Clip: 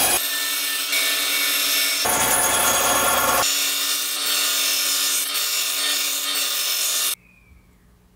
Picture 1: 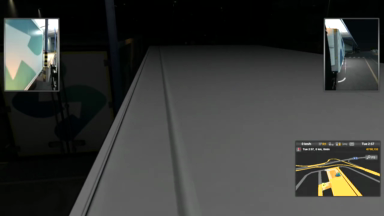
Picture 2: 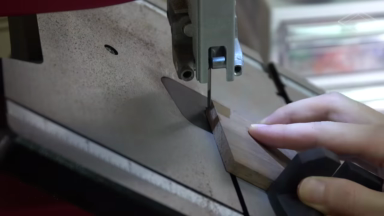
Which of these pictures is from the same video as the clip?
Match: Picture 2